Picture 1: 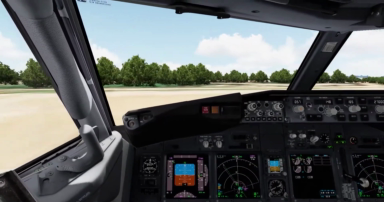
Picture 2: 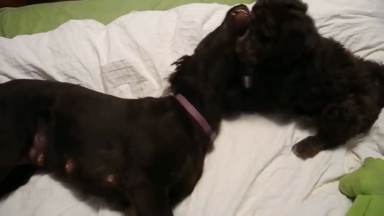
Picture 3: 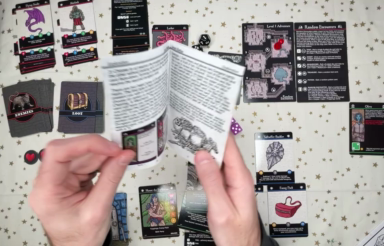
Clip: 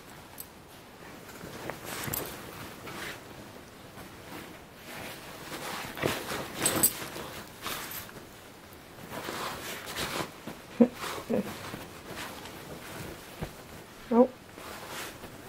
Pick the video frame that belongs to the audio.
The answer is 2